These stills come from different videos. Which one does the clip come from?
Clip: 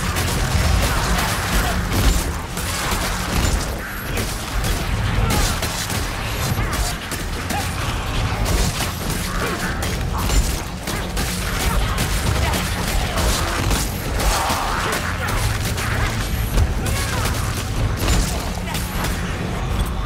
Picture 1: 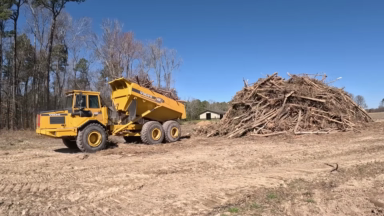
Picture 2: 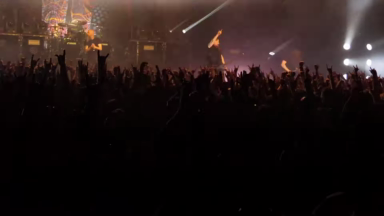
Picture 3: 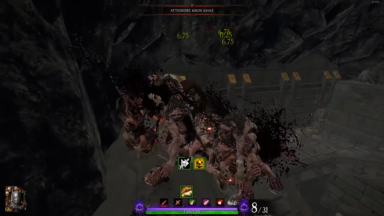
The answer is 3